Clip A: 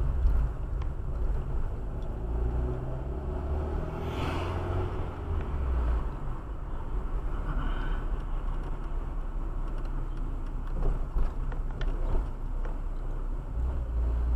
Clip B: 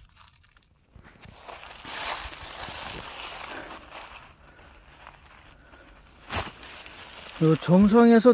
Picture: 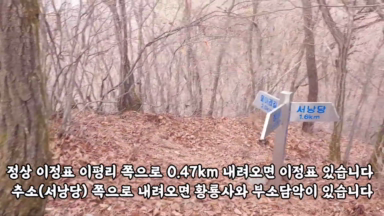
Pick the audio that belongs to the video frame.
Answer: B